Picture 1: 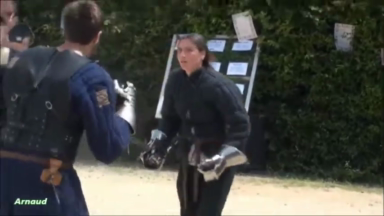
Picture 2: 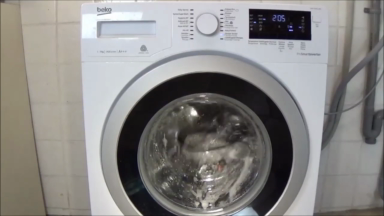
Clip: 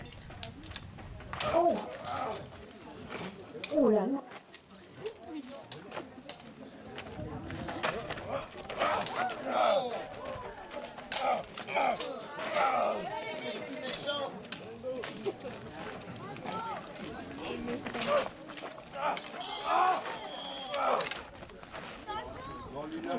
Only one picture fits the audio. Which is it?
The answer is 1